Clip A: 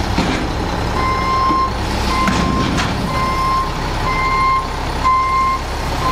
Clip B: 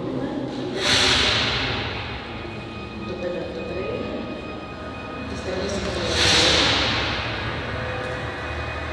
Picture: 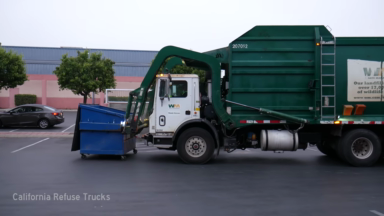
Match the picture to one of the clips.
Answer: A